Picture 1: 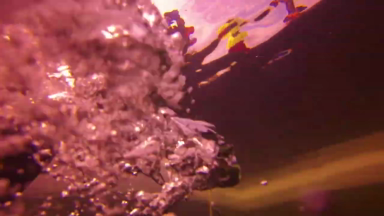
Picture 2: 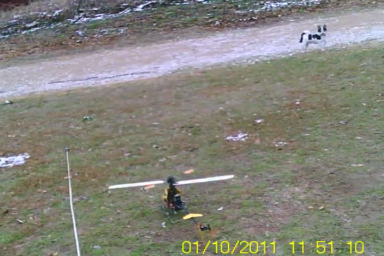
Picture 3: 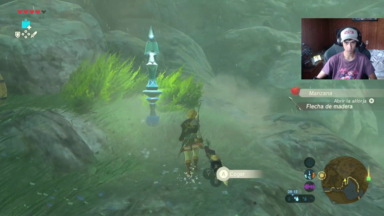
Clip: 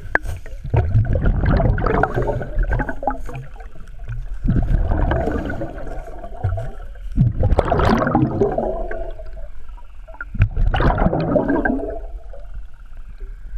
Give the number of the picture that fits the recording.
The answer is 1